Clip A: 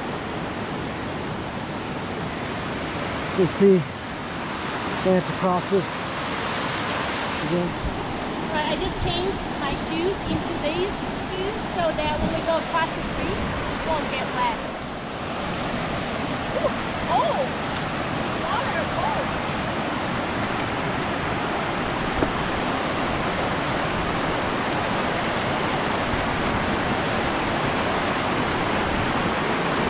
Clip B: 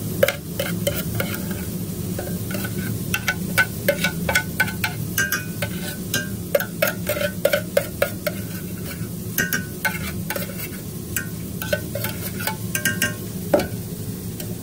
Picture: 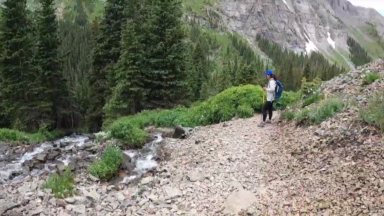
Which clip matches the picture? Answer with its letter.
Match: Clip A